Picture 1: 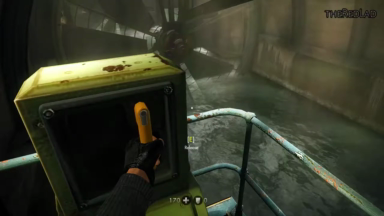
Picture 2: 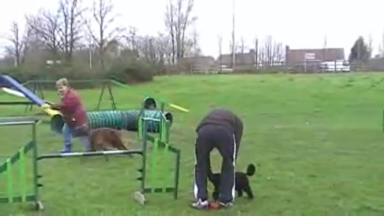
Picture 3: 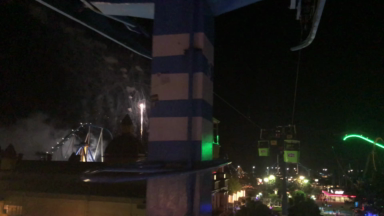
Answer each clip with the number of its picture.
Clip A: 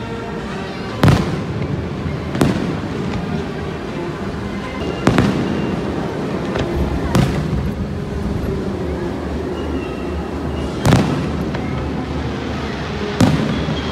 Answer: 3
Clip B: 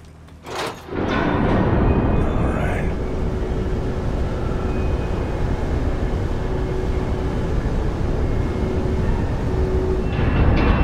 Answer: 1